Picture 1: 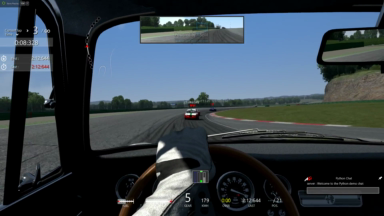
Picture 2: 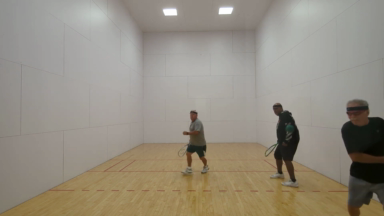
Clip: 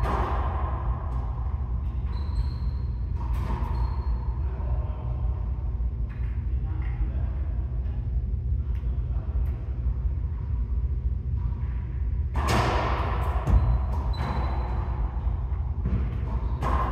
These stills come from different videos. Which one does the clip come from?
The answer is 2